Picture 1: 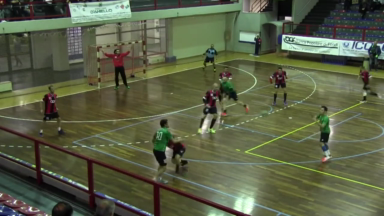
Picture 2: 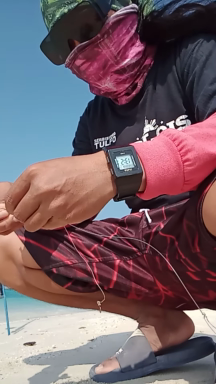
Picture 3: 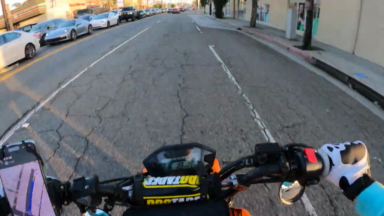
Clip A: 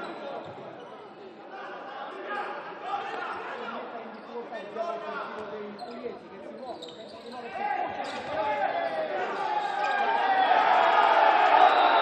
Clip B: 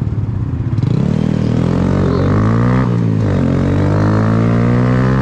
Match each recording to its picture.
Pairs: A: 1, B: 3